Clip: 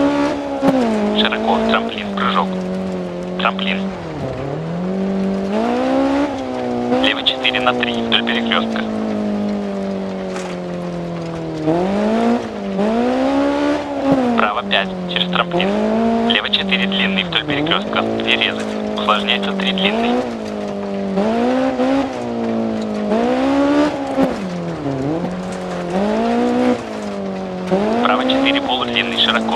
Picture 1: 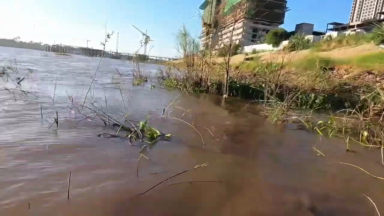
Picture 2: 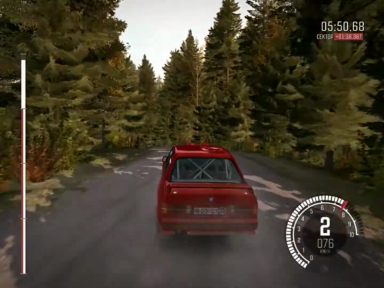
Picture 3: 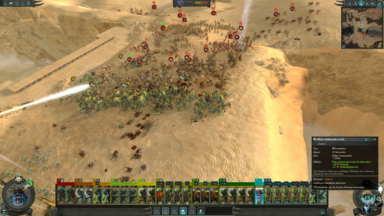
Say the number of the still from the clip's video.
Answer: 2